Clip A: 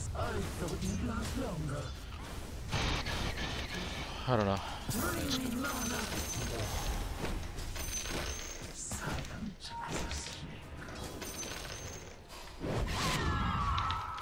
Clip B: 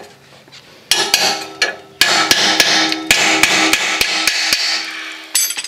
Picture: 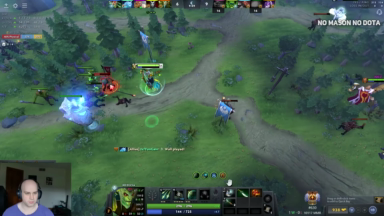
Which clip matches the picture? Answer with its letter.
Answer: A